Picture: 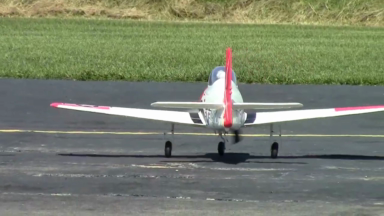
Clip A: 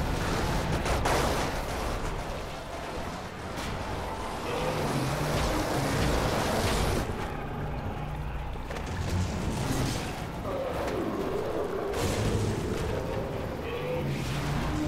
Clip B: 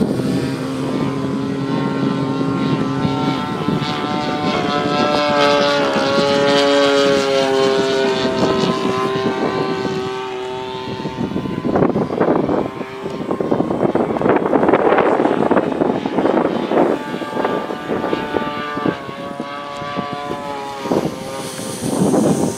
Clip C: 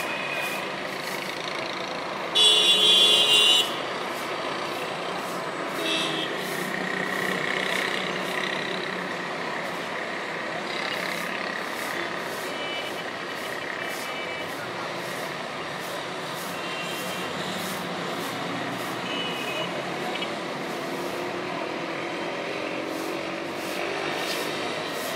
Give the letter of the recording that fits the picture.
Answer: B